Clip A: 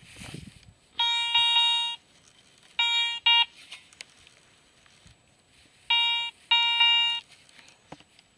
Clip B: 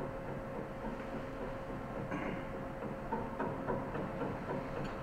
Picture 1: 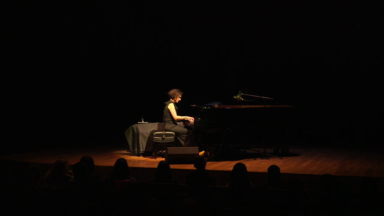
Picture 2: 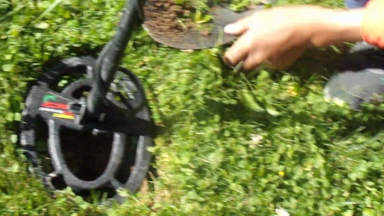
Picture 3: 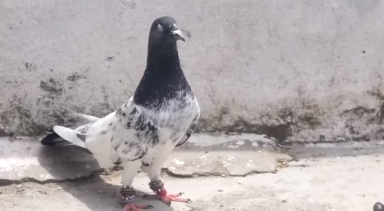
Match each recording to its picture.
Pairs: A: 2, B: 1